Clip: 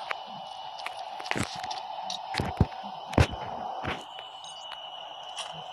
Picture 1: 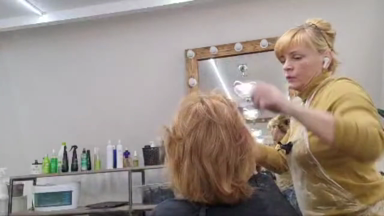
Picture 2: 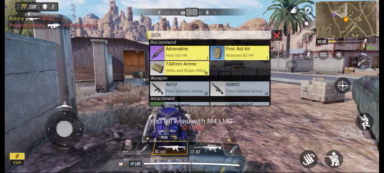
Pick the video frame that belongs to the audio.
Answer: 2